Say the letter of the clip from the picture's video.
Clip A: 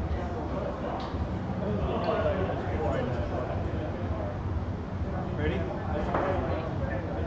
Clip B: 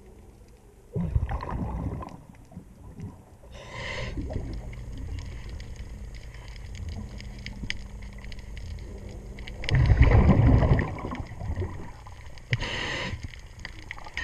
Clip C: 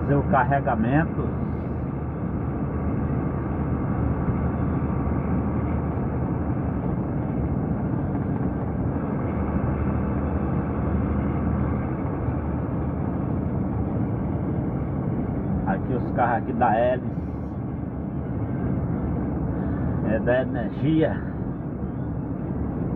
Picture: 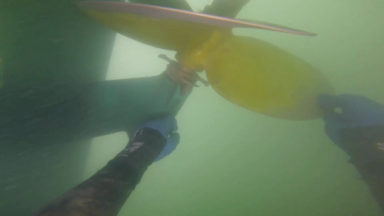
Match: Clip B